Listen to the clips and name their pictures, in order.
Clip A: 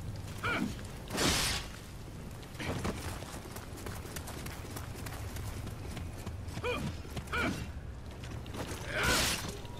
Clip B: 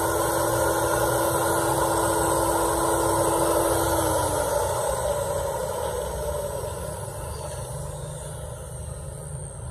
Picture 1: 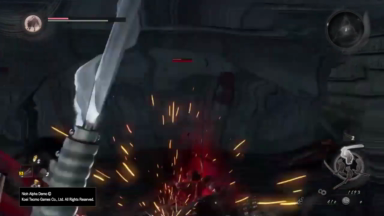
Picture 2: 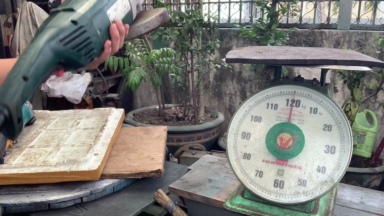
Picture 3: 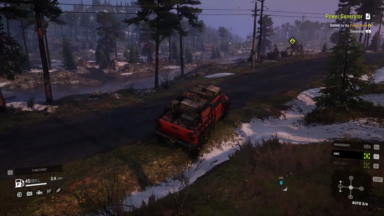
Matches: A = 1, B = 2